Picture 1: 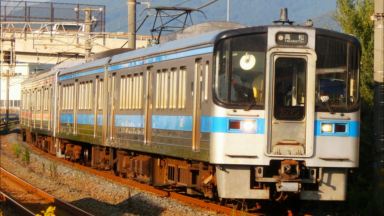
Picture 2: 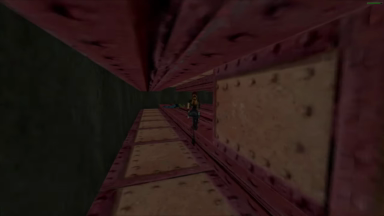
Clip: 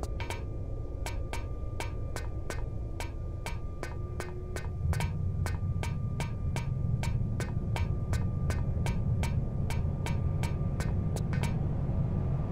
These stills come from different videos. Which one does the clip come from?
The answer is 2